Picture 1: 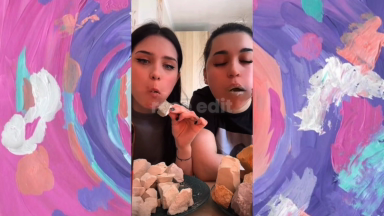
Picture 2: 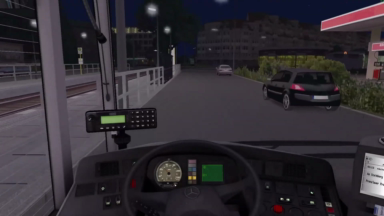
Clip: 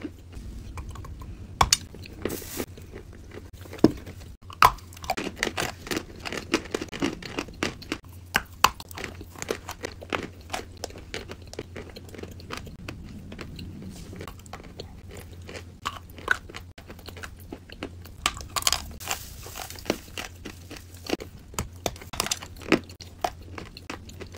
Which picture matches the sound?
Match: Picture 1